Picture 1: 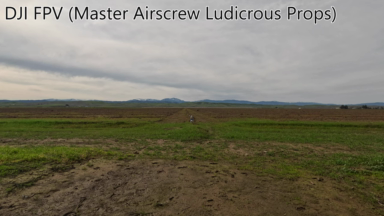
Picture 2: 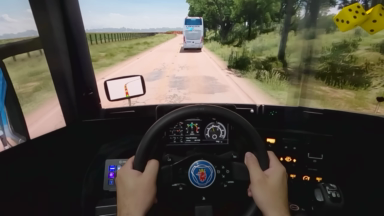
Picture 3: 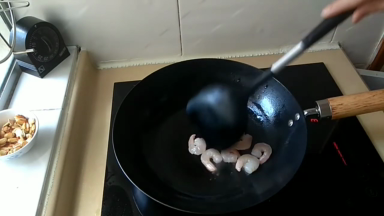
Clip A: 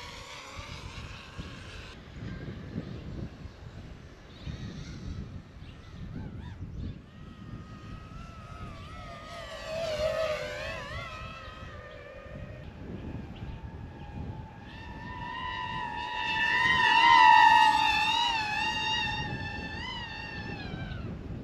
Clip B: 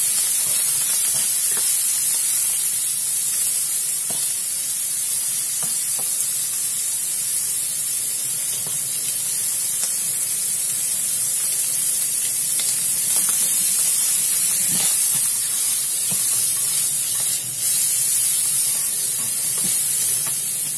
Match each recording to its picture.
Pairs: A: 1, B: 3